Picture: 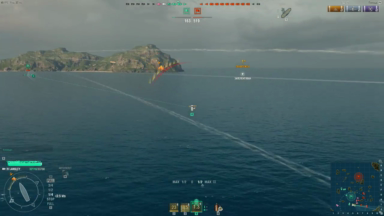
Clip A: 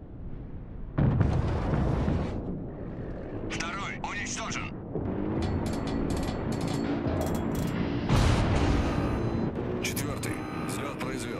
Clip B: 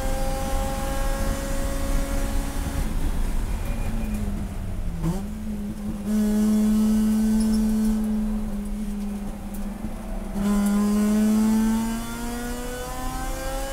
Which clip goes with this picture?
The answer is A